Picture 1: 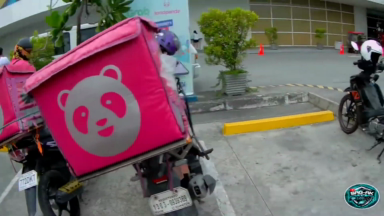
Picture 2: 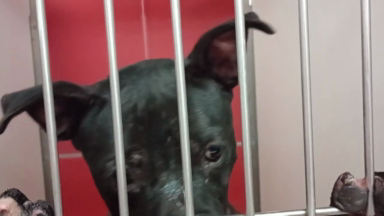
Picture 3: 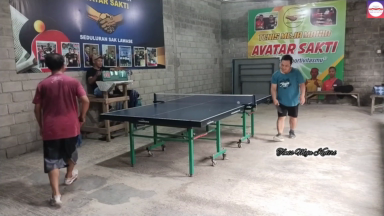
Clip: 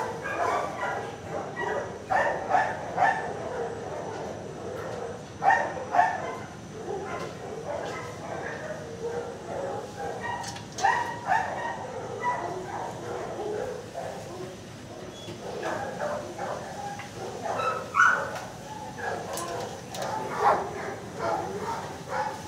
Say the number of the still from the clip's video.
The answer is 2